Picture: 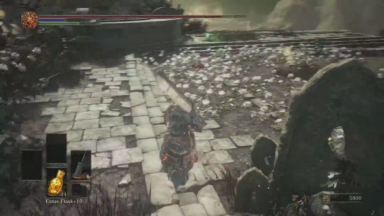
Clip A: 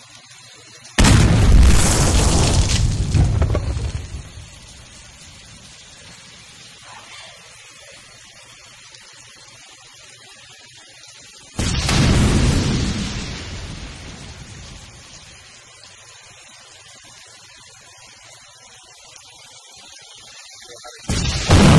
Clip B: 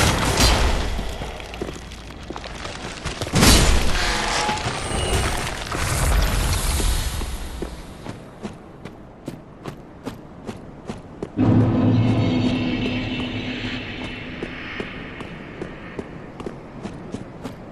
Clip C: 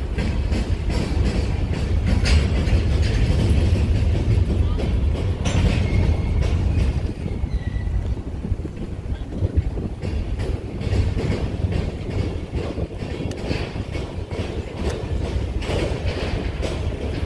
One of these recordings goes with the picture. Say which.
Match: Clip B